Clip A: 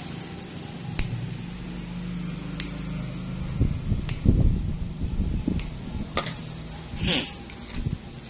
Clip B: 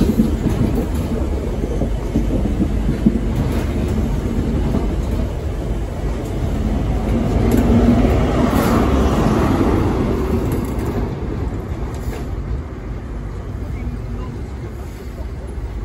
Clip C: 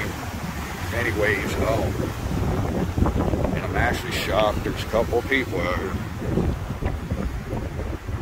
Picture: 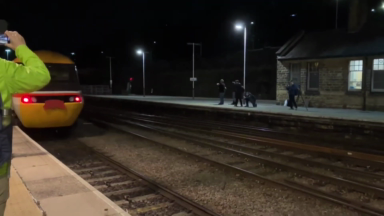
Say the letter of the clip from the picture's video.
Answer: B